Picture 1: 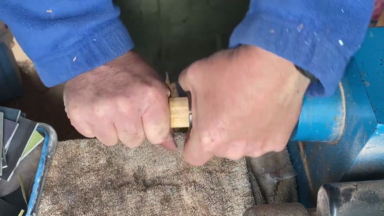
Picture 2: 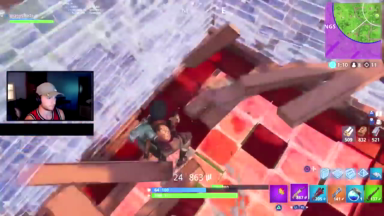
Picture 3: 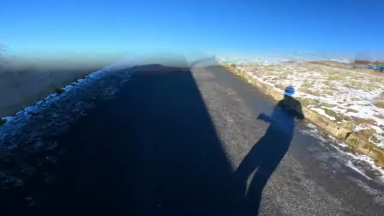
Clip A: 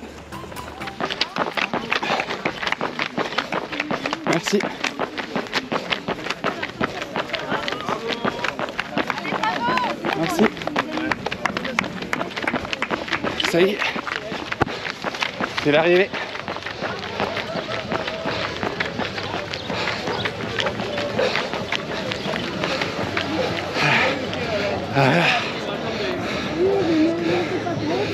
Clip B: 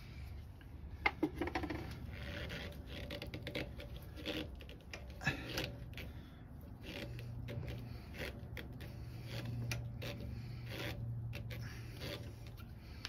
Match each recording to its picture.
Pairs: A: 3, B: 1